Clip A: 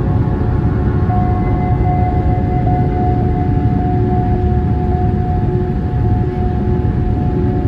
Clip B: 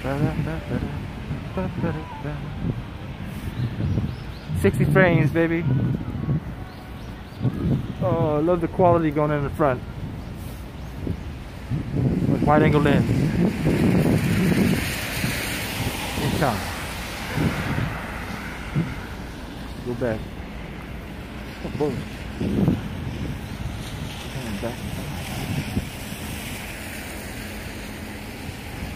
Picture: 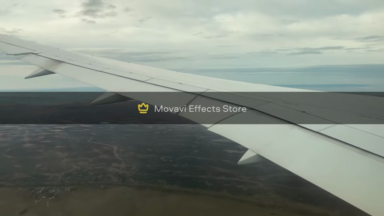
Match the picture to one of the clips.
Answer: A